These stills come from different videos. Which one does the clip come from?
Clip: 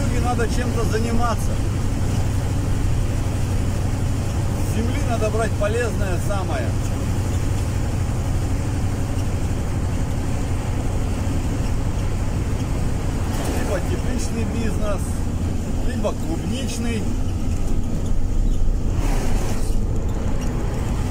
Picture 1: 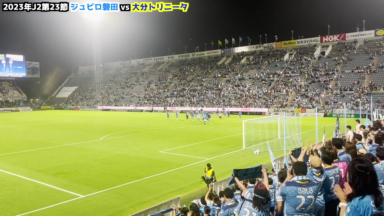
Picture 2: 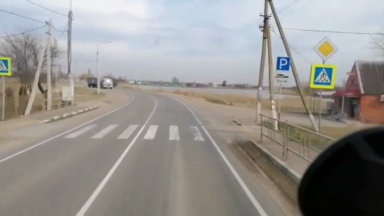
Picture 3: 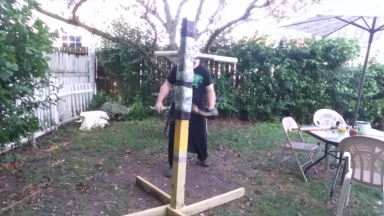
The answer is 2